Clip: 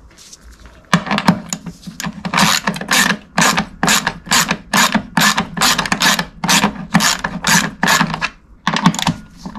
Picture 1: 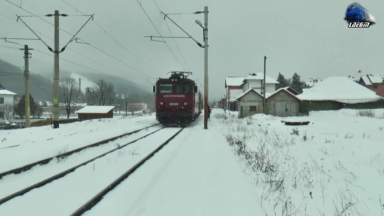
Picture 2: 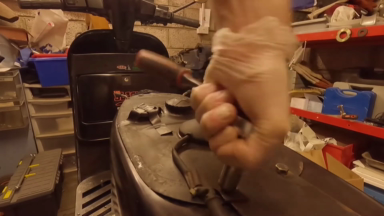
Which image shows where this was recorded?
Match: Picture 2